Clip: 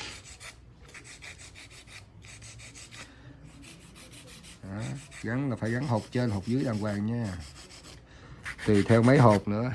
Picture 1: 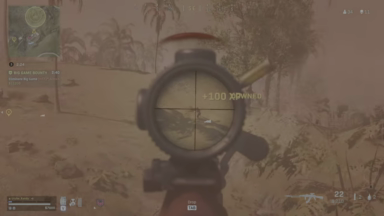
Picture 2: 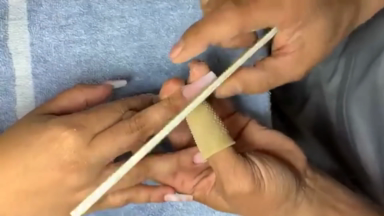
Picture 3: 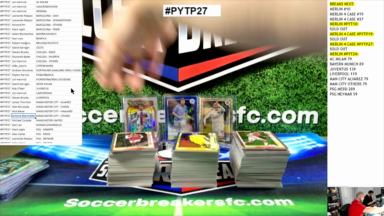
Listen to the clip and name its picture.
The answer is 2